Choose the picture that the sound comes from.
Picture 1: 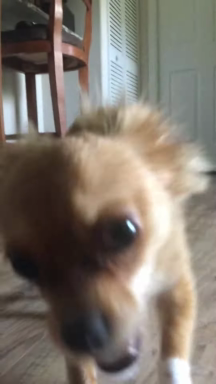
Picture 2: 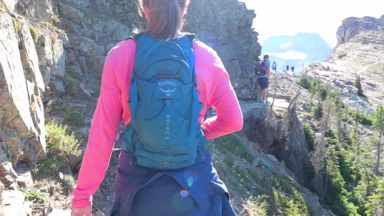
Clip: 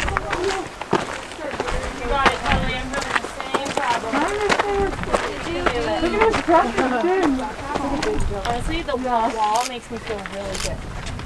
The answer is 2